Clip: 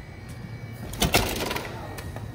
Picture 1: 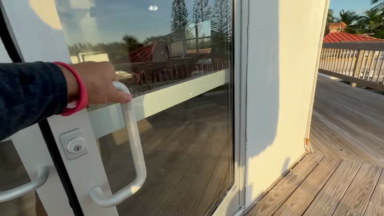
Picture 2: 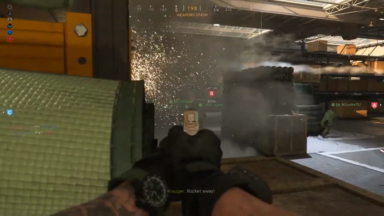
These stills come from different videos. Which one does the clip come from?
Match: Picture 1